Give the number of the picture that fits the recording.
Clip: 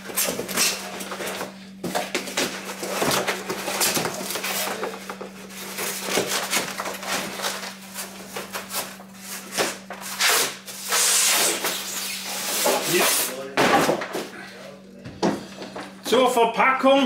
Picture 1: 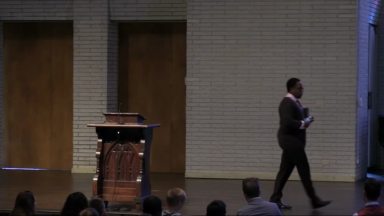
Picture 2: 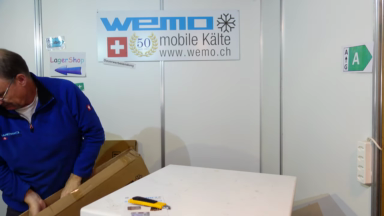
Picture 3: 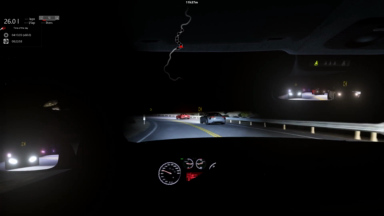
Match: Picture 2